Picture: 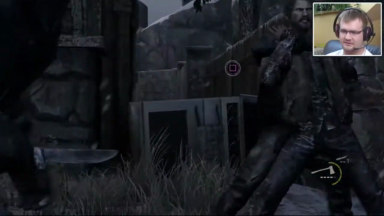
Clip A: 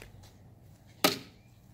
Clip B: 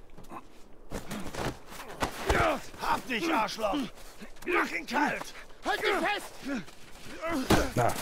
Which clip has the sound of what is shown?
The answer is B